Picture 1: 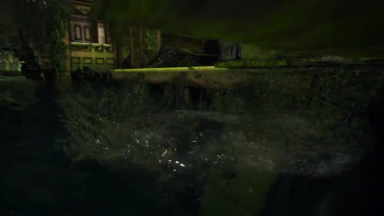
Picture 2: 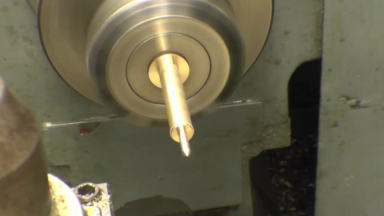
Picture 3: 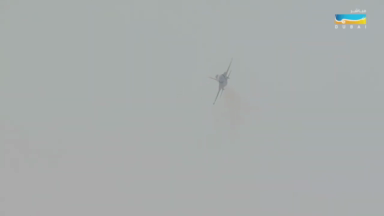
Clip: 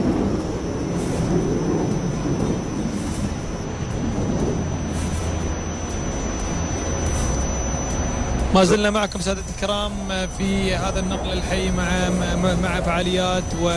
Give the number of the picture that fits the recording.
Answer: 3